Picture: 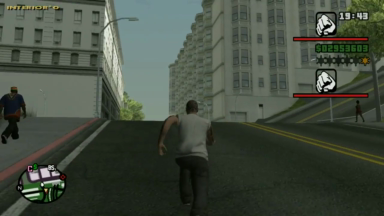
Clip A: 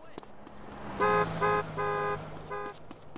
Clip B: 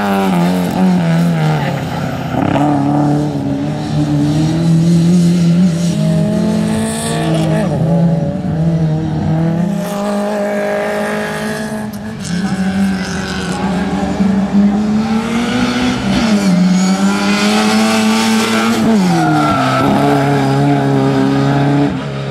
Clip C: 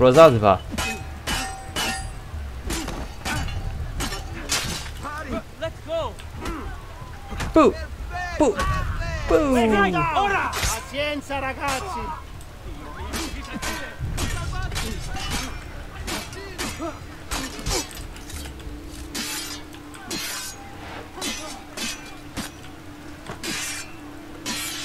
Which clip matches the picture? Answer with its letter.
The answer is A